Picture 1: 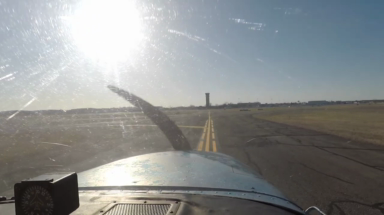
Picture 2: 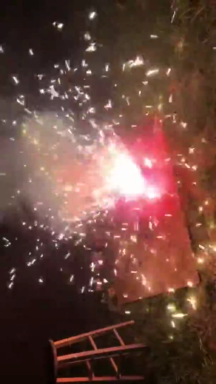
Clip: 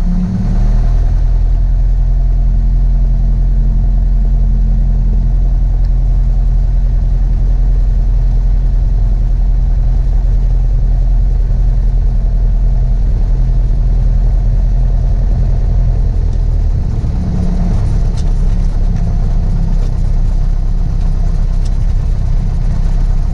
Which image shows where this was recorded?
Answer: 1